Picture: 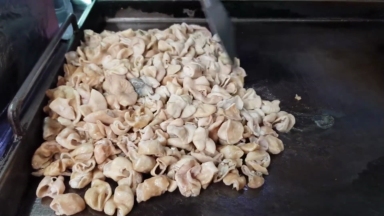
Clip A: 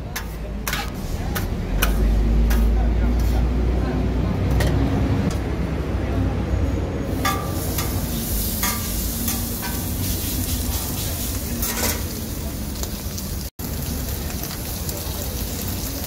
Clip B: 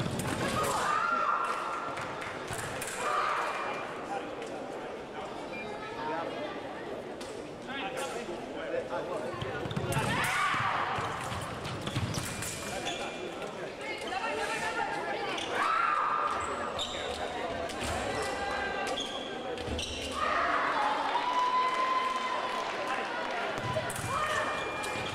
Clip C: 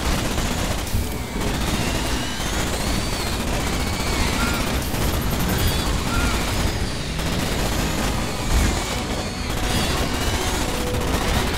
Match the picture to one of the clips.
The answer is A